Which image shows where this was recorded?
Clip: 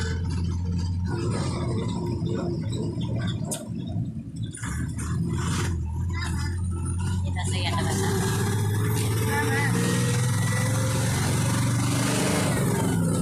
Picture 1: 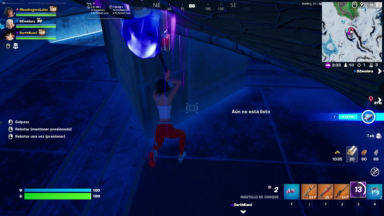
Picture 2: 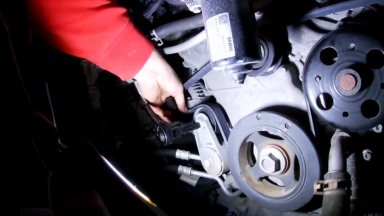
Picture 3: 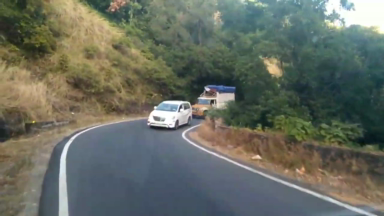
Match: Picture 3